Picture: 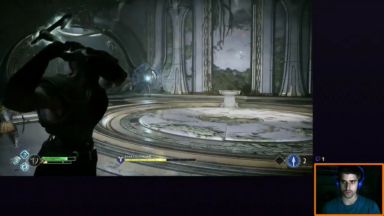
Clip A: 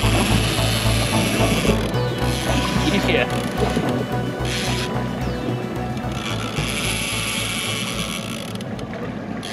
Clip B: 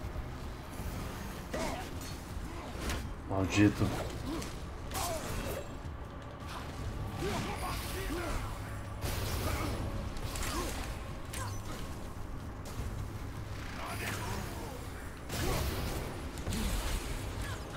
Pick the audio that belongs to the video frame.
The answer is B